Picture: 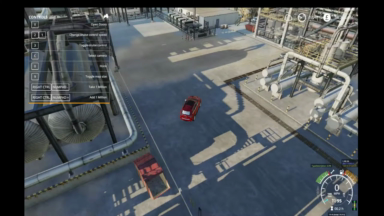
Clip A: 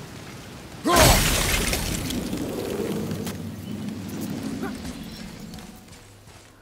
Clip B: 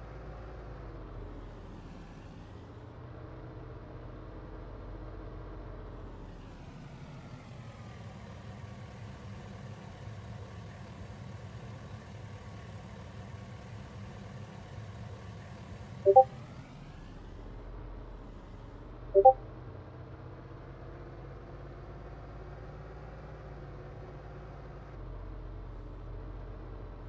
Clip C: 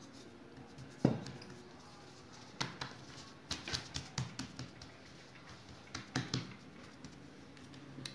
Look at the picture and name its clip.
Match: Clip B